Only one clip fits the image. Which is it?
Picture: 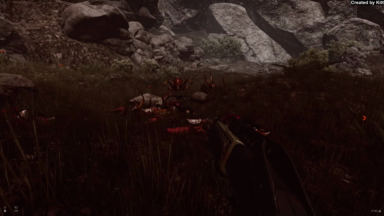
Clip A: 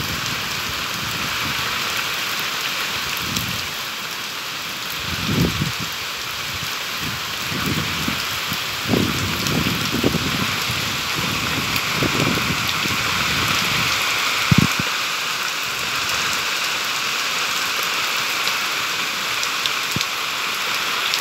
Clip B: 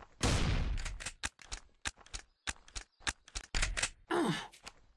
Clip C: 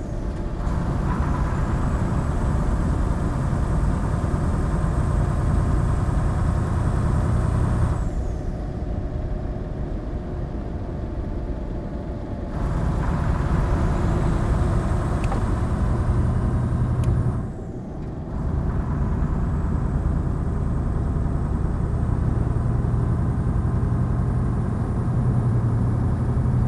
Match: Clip B